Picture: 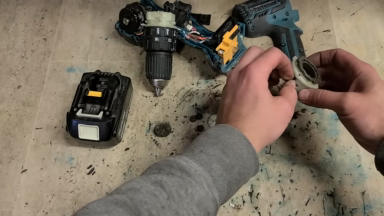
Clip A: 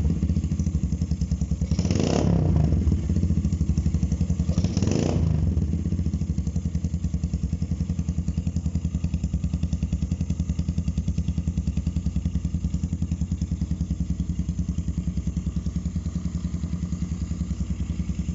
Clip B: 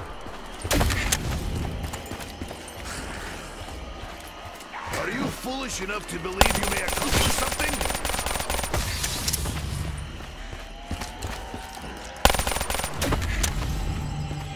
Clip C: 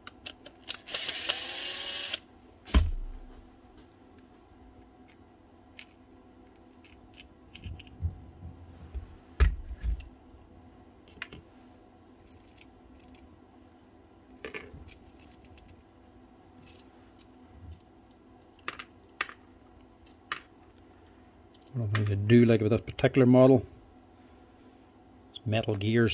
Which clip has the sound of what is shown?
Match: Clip C